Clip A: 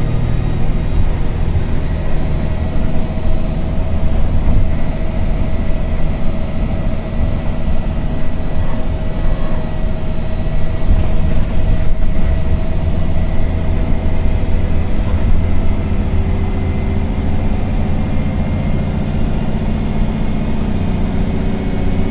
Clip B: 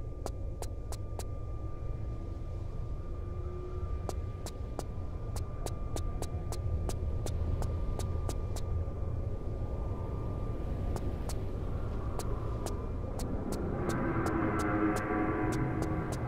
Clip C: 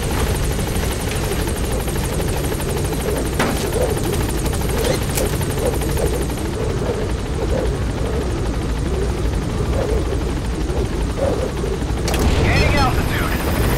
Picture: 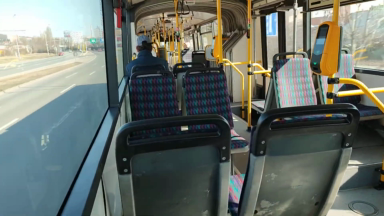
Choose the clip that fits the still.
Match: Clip A